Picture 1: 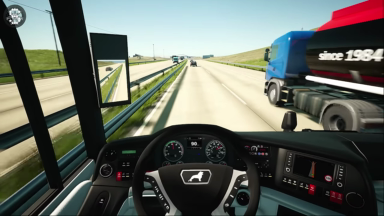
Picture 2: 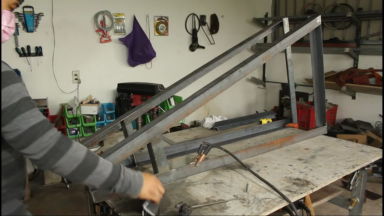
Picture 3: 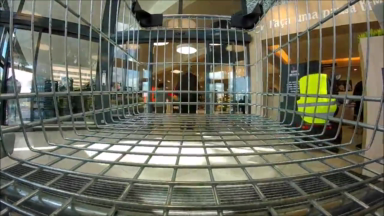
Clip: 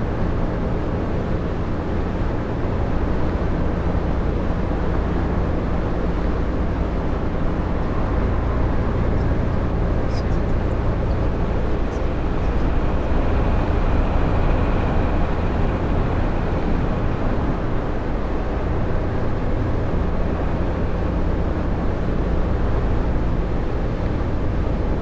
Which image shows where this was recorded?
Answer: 1